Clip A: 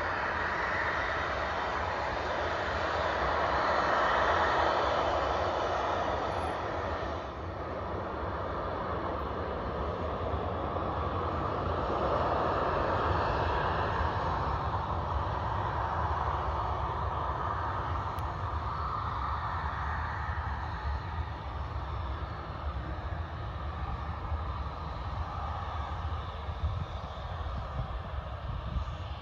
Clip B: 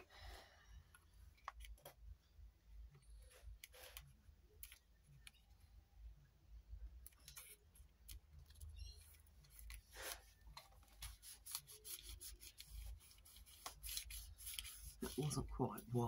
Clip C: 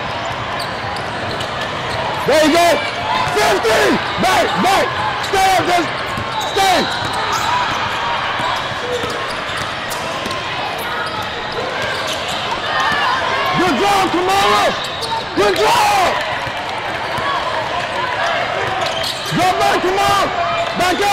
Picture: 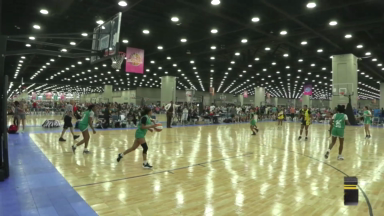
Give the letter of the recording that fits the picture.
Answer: C